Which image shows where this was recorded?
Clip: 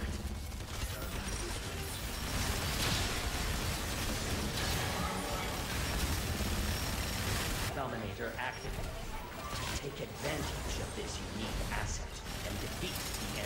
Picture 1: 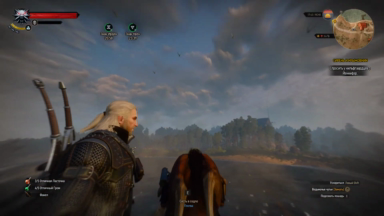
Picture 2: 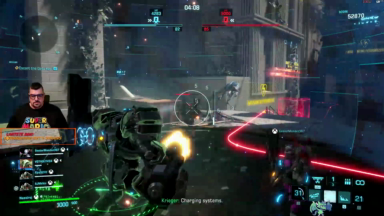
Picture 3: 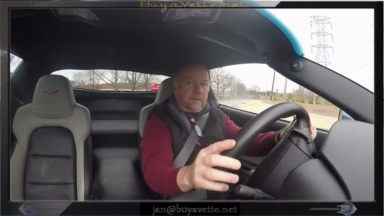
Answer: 2